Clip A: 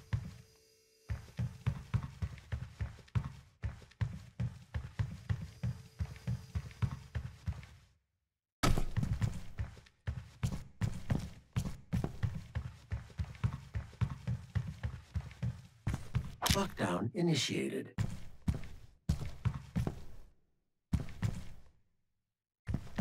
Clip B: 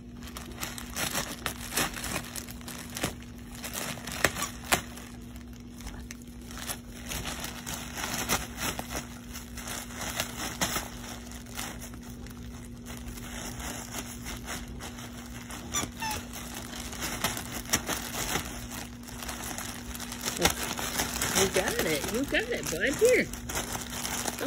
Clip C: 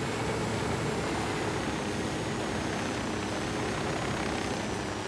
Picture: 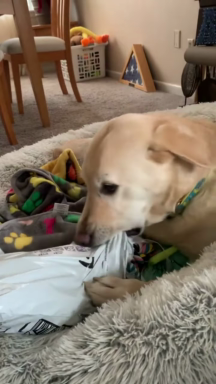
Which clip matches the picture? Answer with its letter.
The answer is B